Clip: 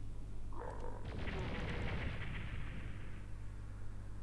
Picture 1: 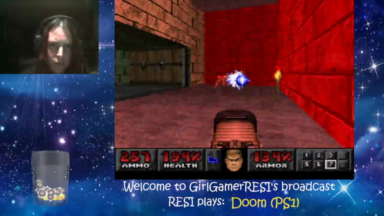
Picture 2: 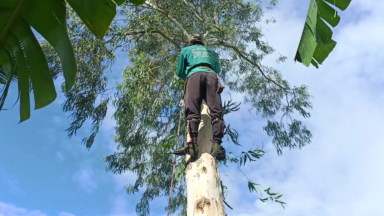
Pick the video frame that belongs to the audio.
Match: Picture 1